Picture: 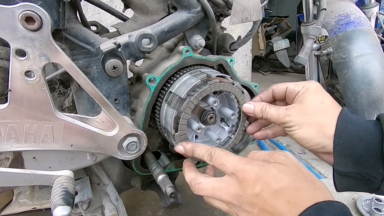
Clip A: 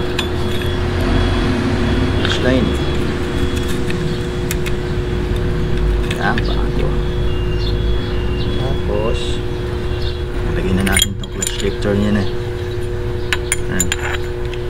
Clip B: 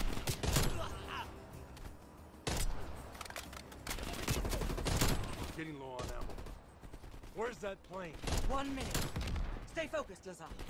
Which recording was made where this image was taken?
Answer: A